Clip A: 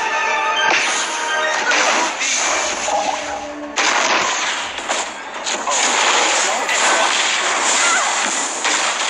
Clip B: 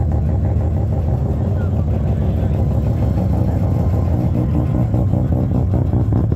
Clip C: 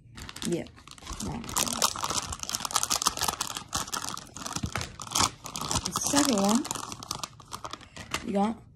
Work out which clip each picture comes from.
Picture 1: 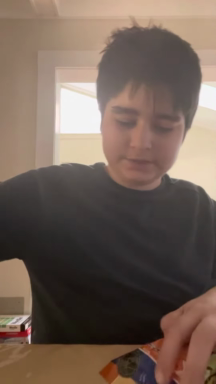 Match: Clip C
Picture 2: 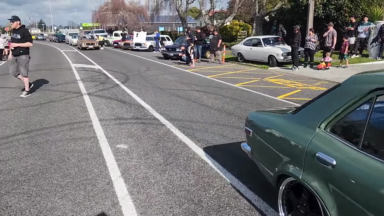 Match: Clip B